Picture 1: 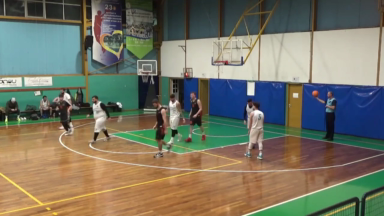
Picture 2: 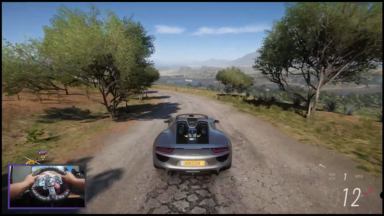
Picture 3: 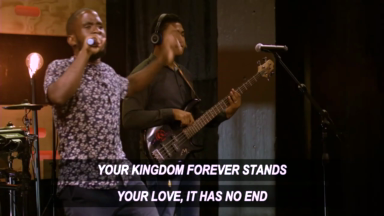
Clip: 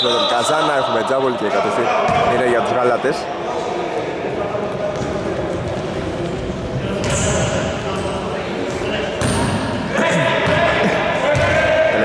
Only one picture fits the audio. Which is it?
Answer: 1